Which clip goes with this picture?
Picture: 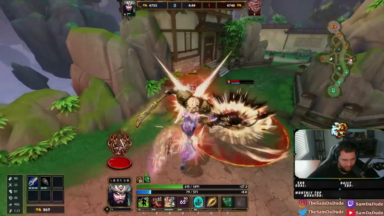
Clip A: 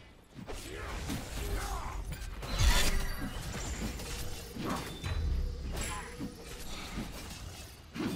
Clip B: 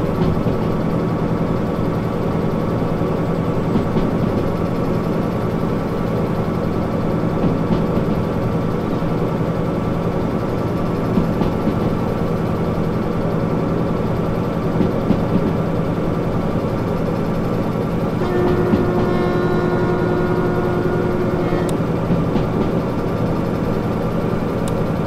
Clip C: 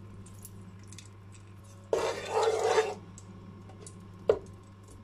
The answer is A